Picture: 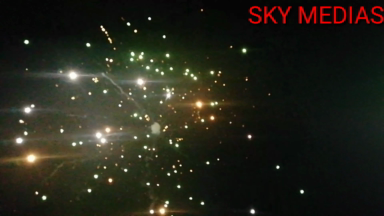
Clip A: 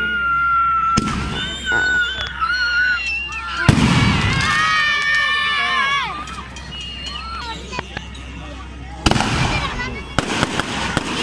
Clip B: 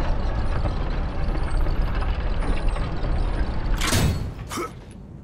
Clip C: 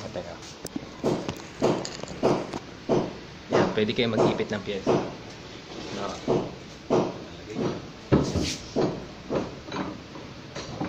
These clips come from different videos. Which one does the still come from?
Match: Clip A